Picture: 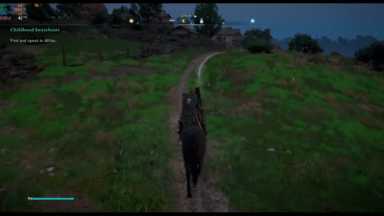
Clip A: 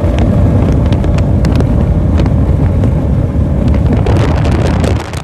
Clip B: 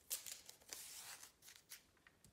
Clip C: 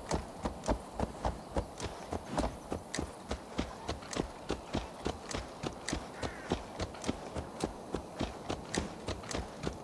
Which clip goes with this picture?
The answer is C